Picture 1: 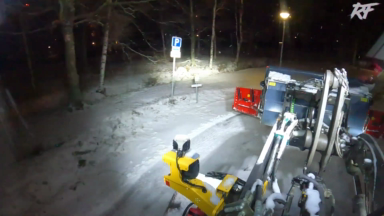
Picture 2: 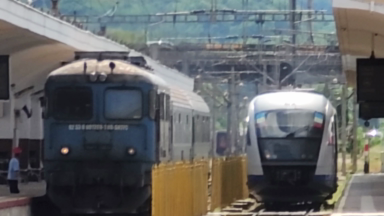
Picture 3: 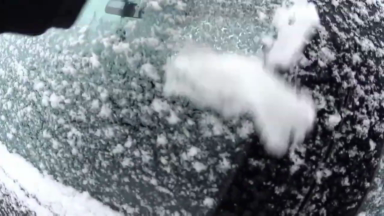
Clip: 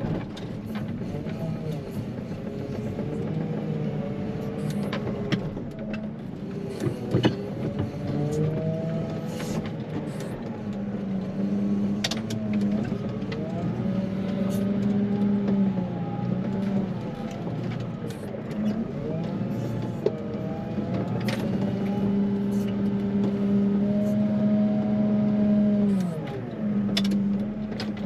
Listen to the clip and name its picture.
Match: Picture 1